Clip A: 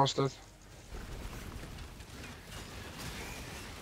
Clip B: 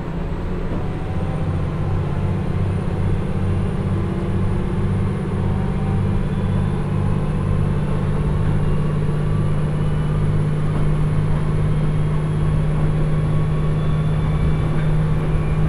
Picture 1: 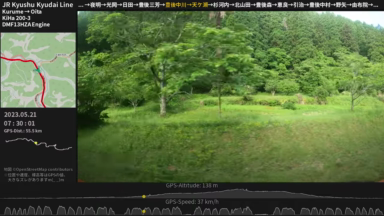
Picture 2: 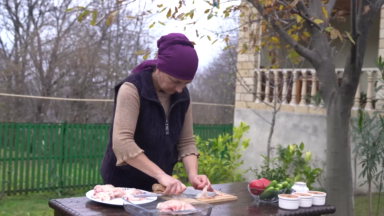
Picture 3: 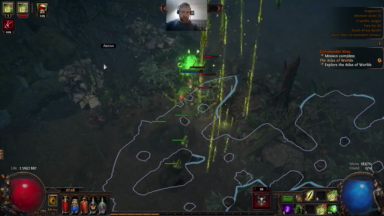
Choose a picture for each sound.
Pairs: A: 3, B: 1